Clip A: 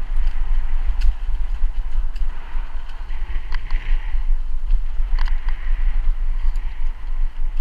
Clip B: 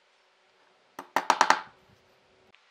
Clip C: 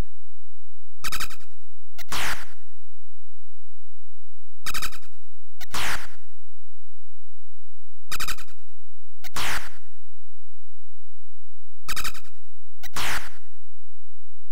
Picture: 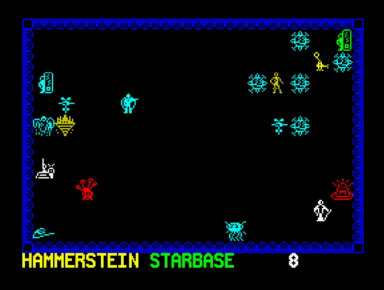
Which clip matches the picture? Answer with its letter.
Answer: C